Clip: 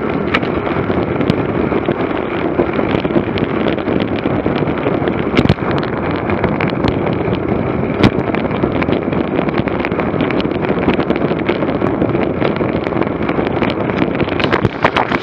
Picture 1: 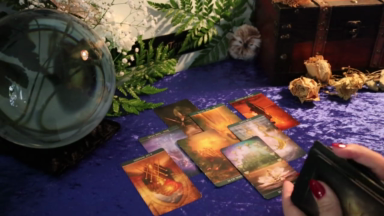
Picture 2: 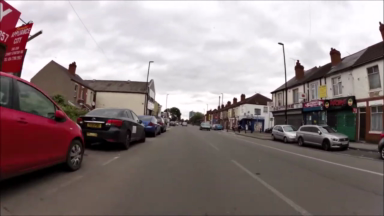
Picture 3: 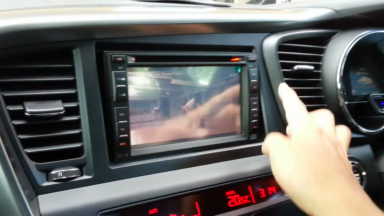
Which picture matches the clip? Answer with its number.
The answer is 2